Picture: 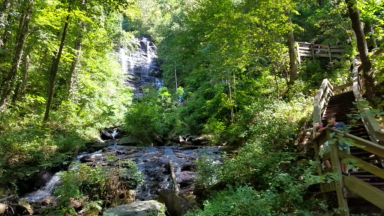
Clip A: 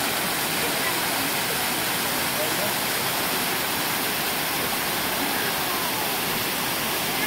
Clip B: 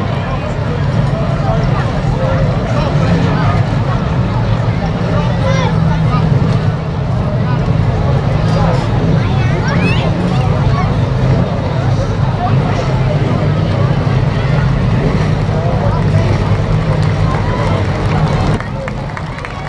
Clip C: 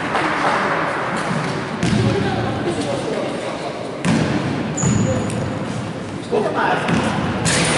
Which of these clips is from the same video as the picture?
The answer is A